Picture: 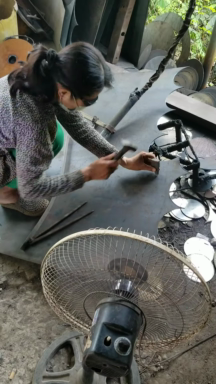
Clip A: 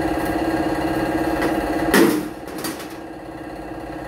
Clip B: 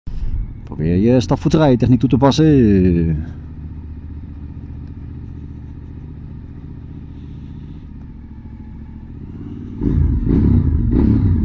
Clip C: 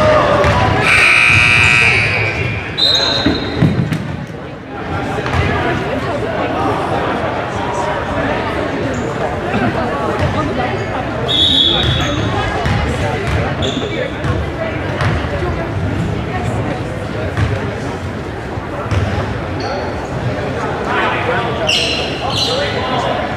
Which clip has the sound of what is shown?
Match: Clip A